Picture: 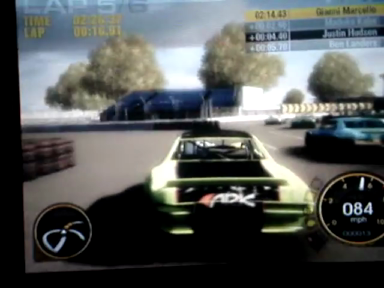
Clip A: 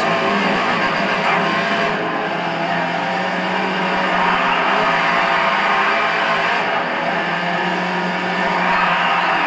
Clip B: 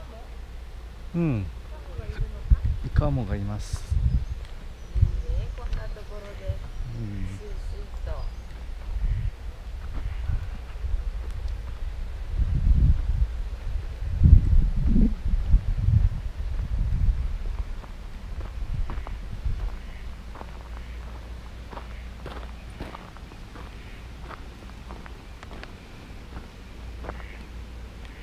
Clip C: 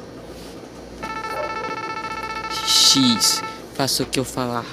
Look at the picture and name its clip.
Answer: A